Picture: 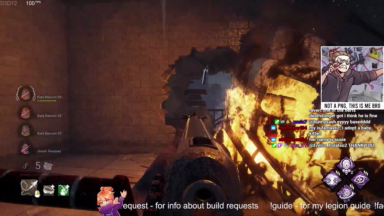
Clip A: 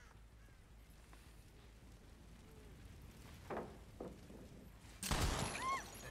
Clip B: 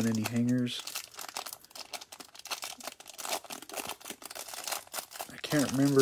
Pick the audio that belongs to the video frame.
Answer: A